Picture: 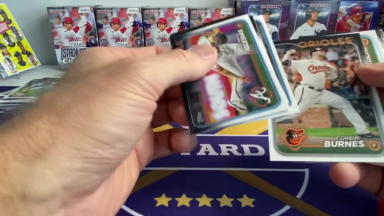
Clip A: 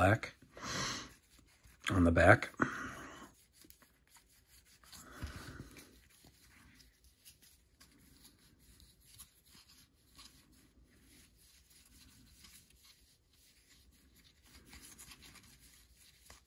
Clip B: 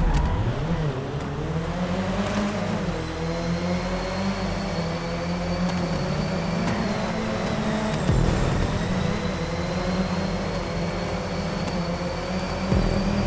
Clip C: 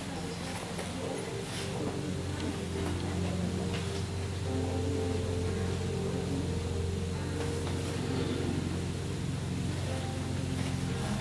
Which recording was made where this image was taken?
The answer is A